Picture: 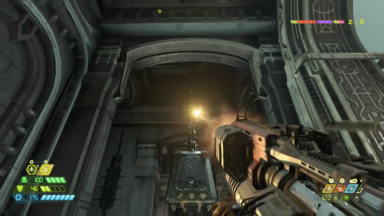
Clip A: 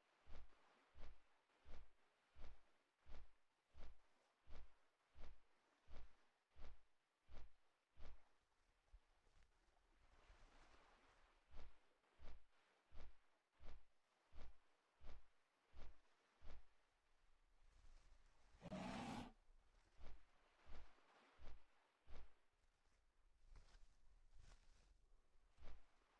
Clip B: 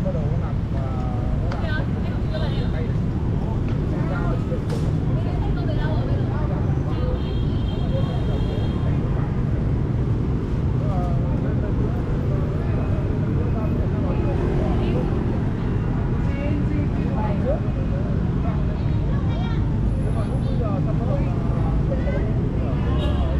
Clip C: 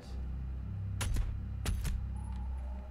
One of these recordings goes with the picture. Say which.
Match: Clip C